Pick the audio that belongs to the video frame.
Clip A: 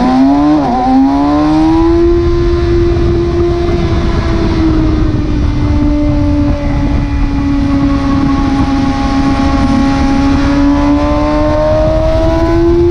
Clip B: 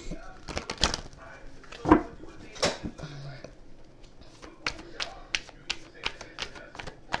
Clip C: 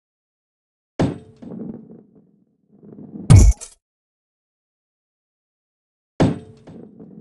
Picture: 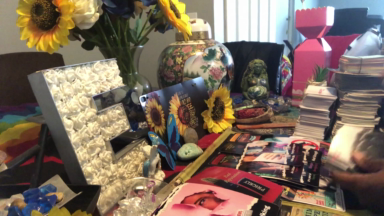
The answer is B